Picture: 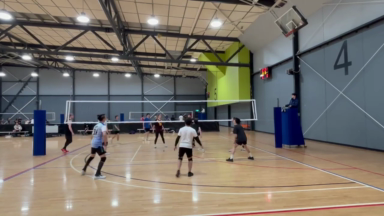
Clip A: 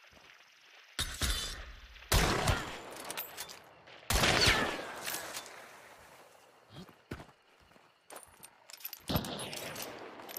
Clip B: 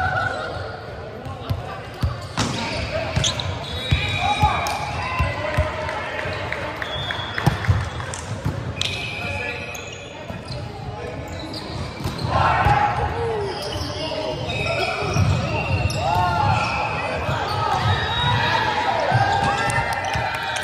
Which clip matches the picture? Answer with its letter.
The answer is B